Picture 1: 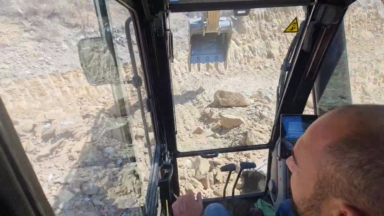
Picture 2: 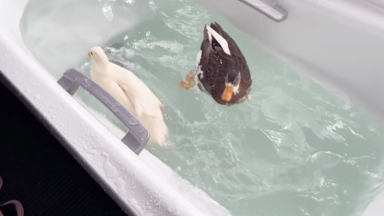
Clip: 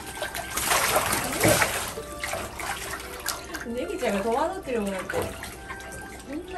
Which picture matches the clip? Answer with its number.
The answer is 2